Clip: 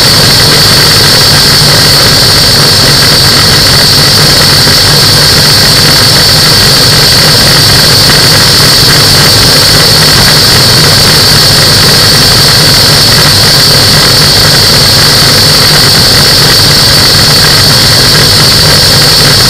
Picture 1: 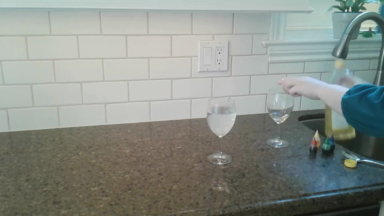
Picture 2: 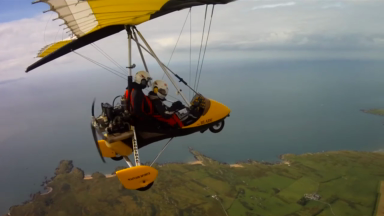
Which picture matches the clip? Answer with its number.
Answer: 2